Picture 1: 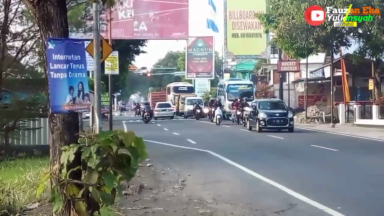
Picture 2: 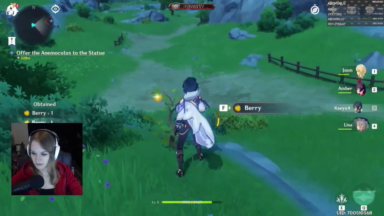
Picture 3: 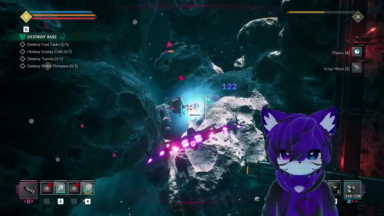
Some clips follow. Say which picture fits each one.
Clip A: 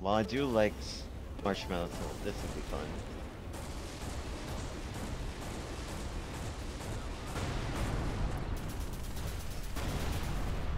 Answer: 3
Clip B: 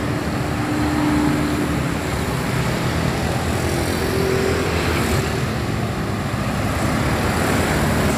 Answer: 1